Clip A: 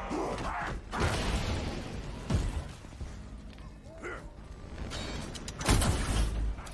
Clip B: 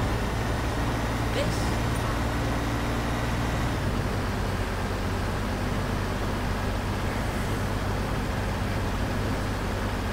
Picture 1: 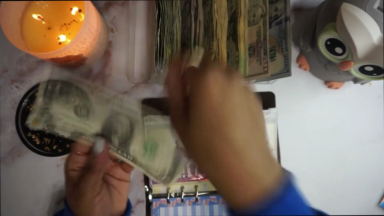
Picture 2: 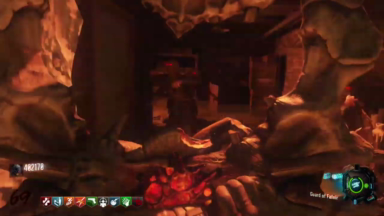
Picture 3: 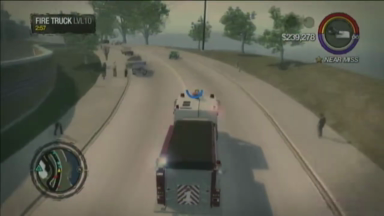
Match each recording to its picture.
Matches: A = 2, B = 3